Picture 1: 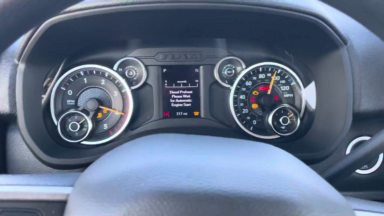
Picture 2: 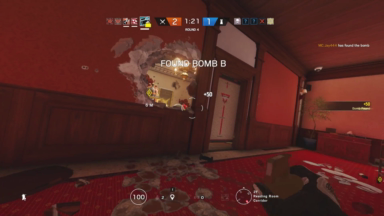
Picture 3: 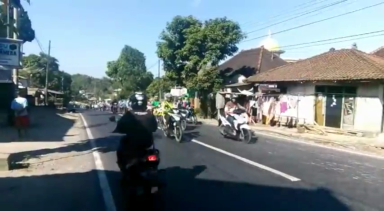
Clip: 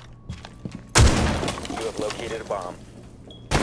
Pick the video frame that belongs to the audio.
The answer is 2